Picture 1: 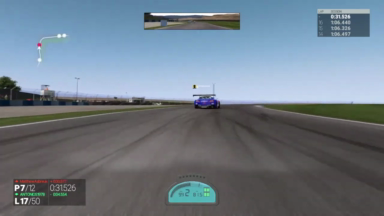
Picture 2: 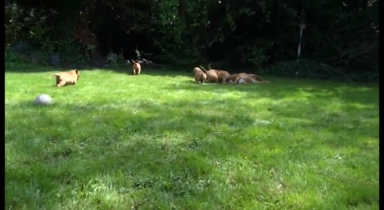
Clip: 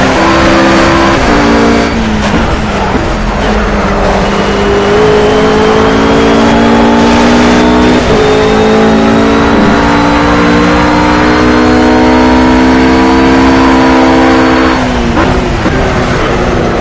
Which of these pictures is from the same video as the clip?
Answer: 1